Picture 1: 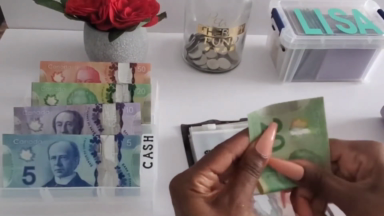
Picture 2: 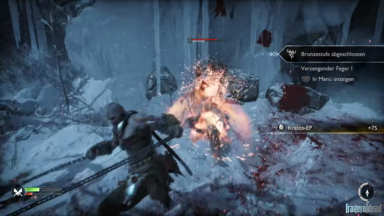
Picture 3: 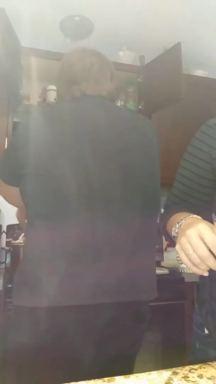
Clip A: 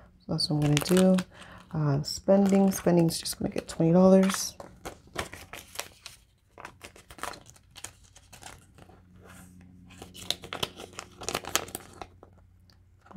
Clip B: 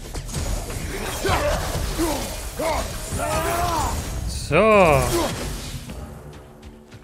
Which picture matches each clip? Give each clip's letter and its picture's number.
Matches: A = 1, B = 2